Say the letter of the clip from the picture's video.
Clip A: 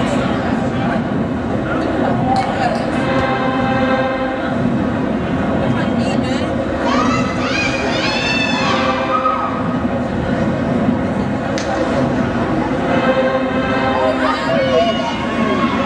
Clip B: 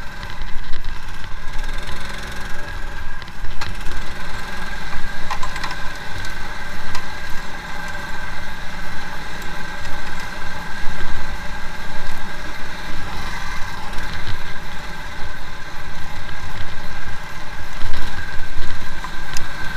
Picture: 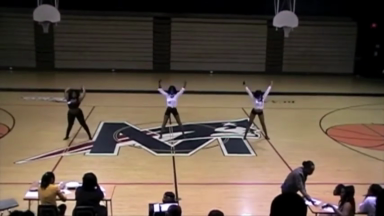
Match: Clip A